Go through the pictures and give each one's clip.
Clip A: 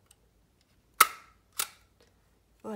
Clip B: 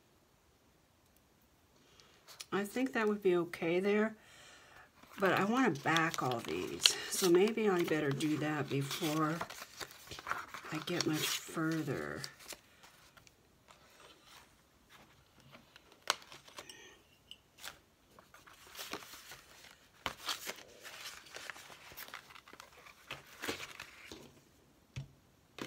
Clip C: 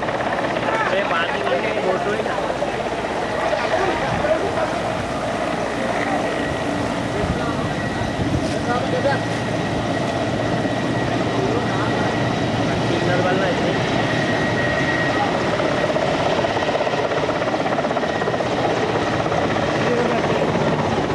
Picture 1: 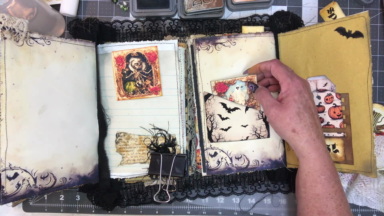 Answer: B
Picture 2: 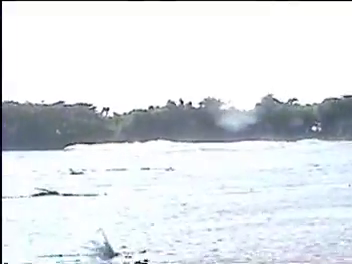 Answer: C